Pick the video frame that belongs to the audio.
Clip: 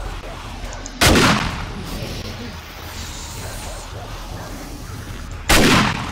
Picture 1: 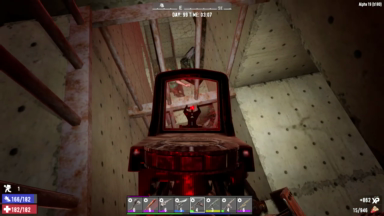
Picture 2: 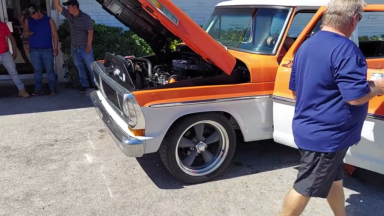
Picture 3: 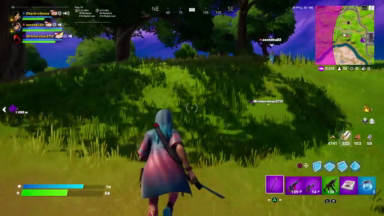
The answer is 1